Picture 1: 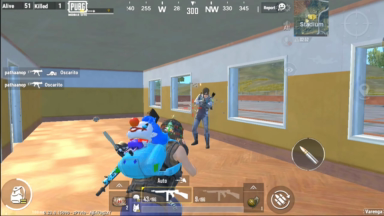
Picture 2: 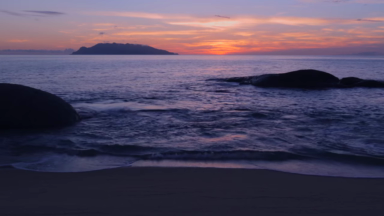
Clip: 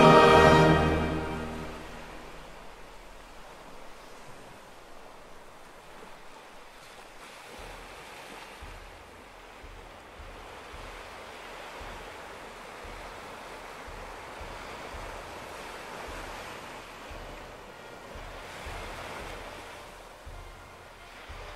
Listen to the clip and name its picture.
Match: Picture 2